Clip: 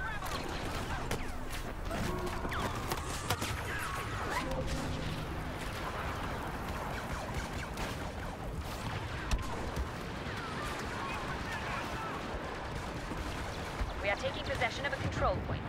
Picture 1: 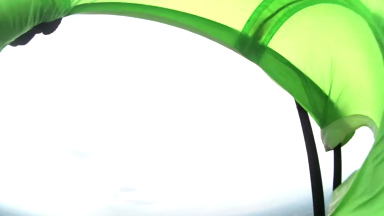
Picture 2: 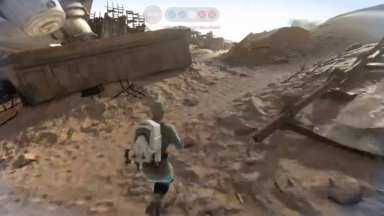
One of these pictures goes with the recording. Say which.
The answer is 2